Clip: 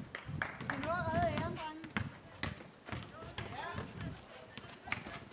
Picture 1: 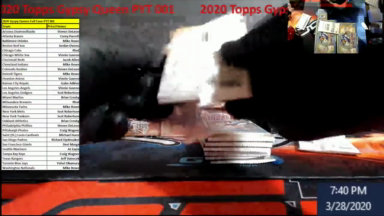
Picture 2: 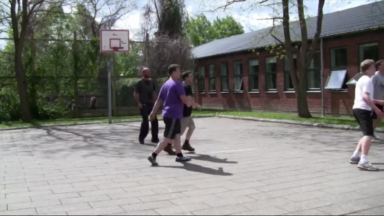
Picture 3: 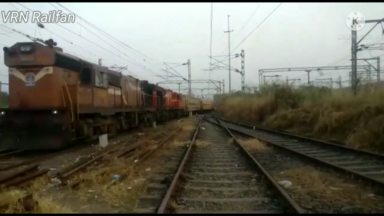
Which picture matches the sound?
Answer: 2